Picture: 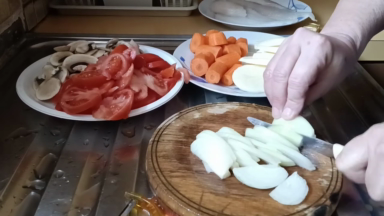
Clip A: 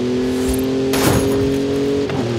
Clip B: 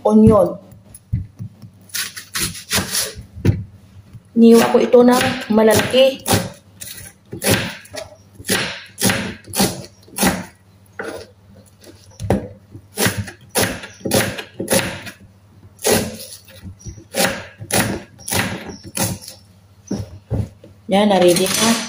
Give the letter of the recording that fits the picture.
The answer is B